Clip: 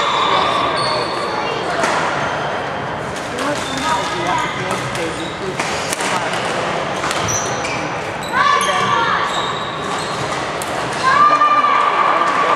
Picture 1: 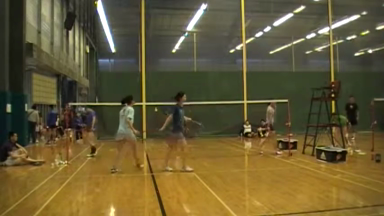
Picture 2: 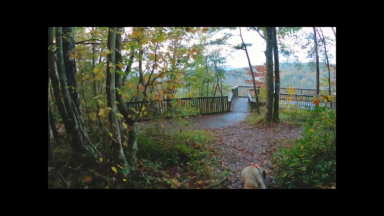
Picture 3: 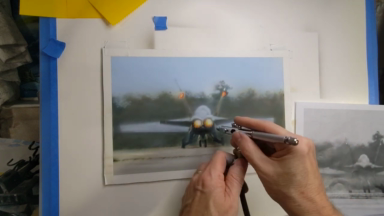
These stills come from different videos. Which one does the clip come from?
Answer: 1